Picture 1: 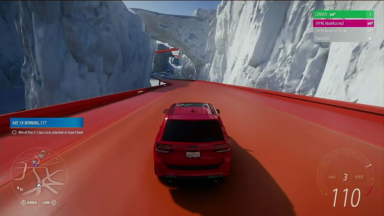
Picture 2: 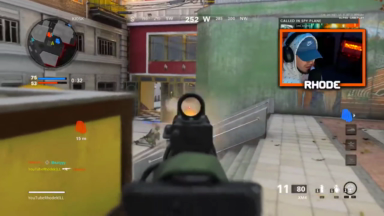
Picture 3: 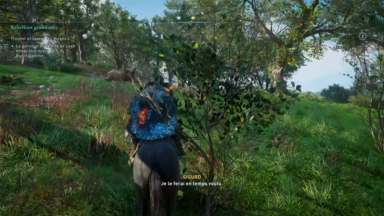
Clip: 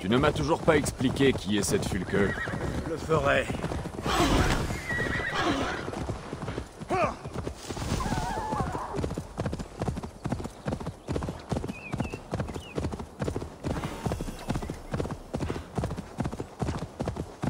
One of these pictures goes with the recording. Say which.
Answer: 3